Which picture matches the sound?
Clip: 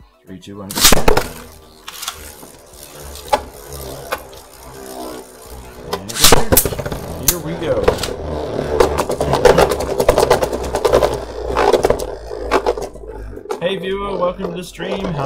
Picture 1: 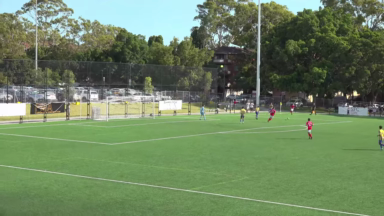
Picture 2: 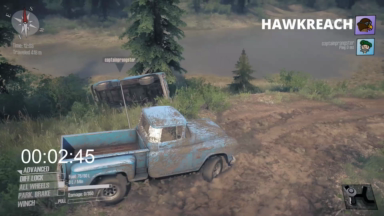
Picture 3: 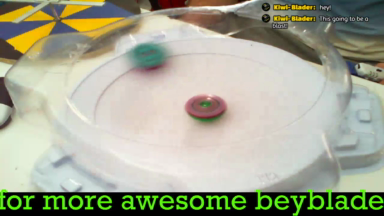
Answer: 3